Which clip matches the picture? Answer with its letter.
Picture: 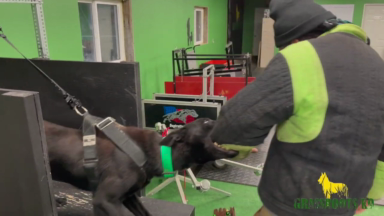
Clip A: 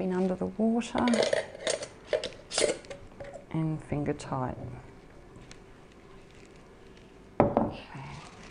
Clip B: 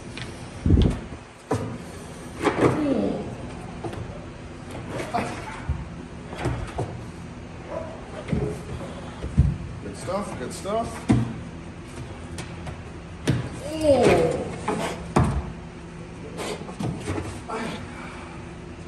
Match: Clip B